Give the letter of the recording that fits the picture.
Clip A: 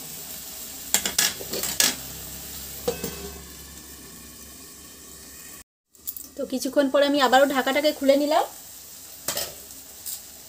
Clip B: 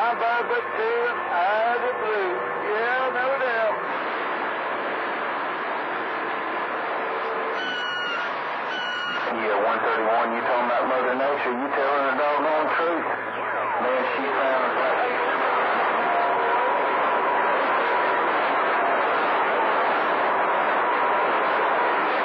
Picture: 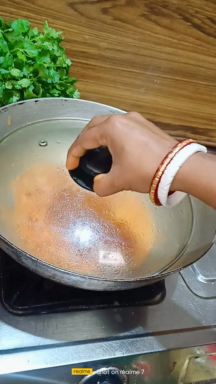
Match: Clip A